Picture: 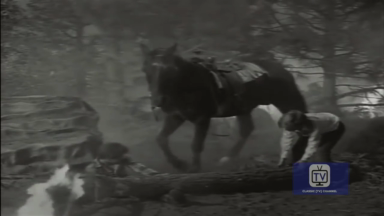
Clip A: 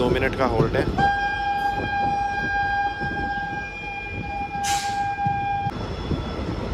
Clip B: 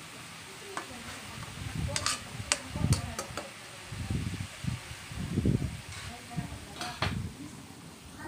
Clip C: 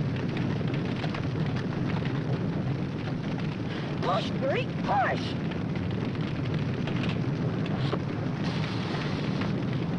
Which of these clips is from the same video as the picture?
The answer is C